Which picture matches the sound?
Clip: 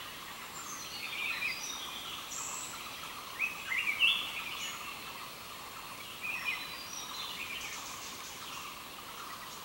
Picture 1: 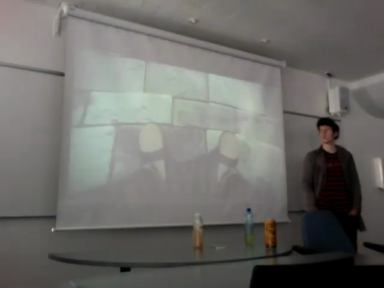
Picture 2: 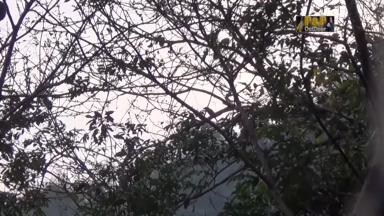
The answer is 2